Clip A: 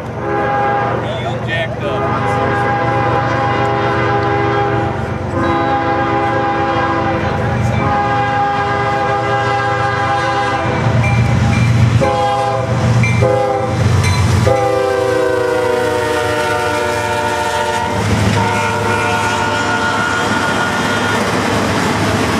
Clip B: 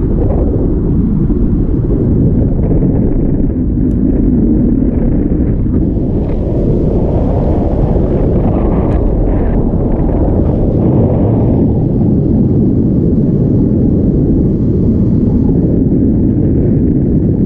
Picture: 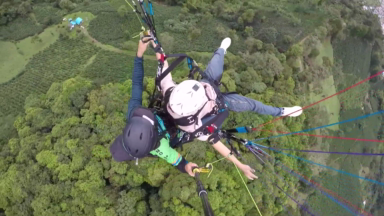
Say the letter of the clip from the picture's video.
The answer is B